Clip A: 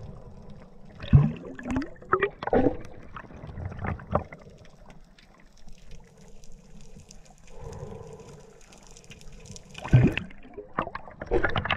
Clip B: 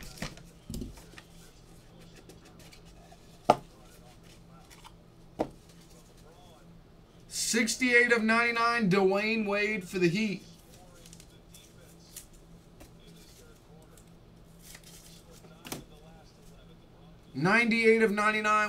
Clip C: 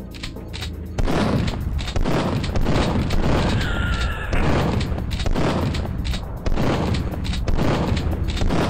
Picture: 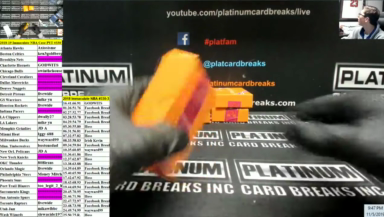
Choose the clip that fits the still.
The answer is B